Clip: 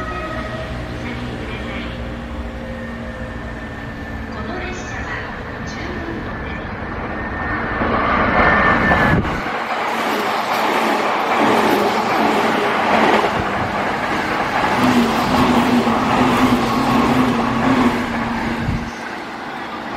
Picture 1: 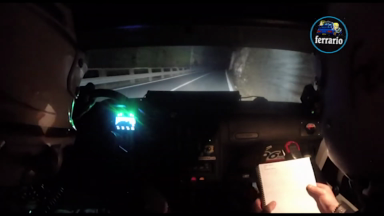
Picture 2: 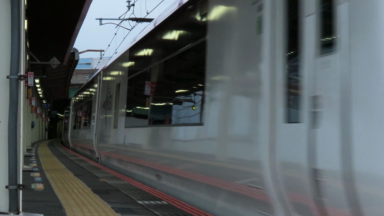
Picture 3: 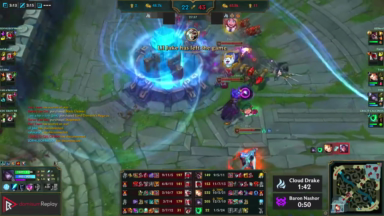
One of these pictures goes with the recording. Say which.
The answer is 2